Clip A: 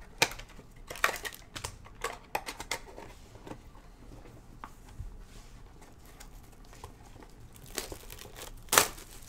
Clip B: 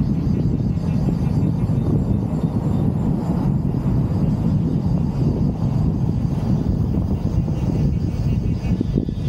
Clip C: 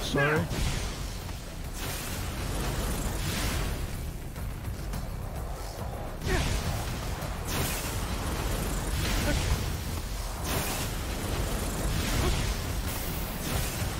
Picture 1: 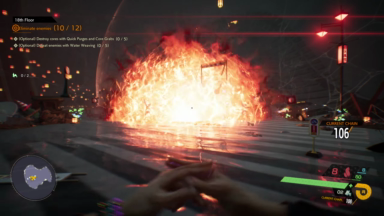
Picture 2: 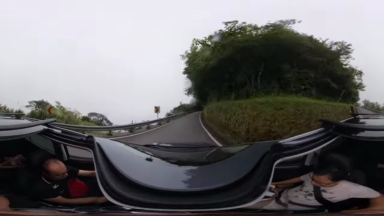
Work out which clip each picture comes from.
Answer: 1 C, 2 B